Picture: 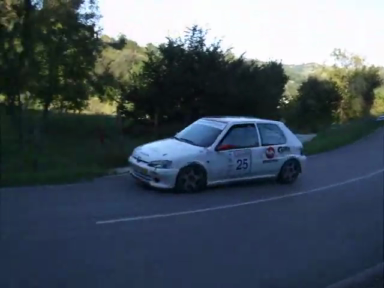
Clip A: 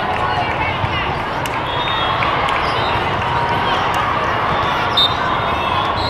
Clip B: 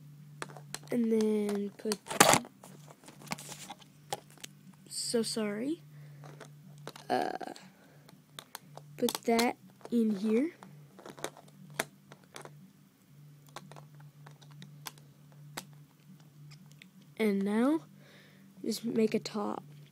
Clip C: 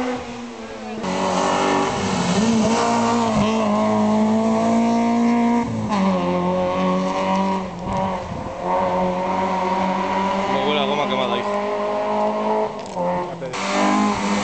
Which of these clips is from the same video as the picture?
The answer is C